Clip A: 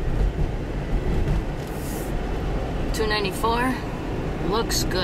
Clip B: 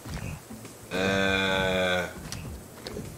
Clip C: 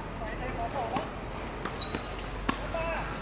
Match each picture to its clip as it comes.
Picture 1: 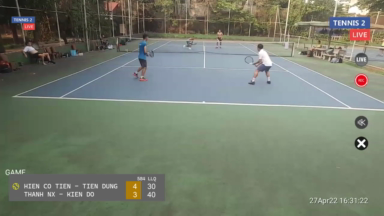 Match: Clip C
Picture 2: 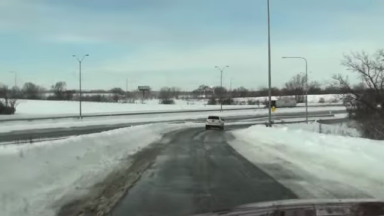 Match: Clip A